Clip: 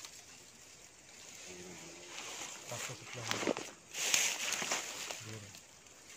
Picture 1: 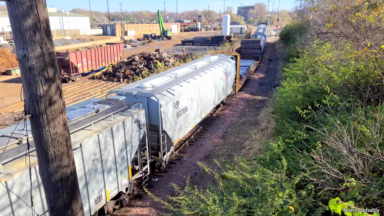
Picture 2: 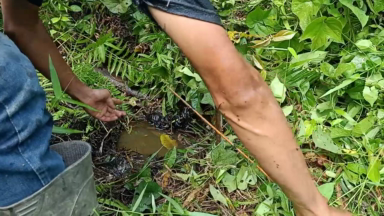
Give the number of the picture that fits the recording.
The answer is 2